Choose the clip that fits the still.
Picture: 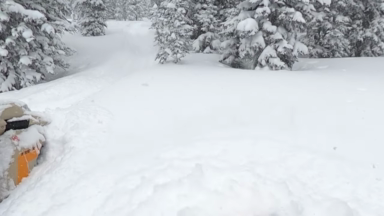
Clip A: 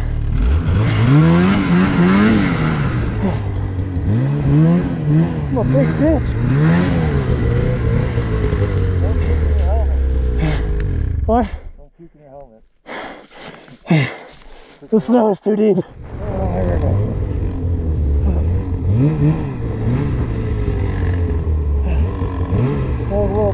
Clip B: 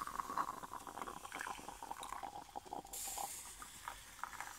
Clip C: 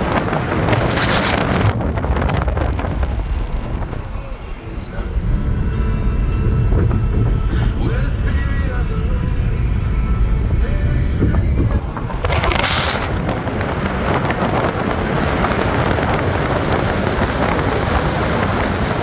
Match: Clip A